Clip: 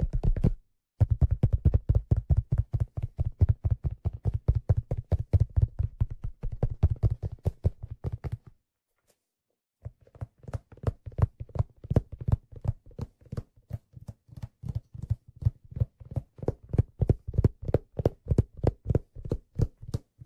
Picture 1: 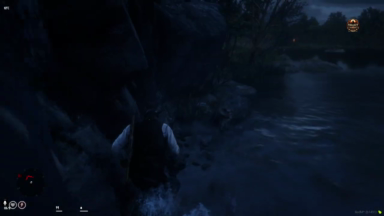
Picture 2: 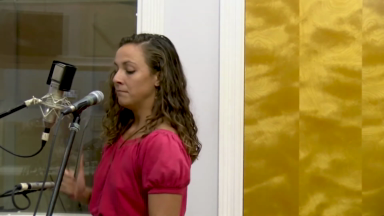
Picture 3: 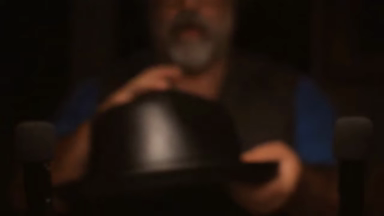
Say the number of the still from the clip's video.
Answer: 3